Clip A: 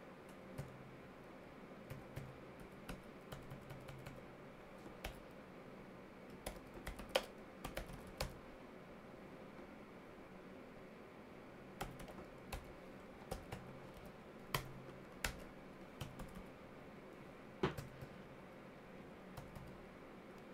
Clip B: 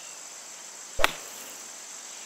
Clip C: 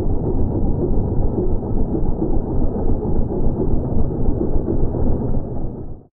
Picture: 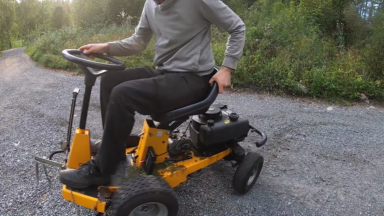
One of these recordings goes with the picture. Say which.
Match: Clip C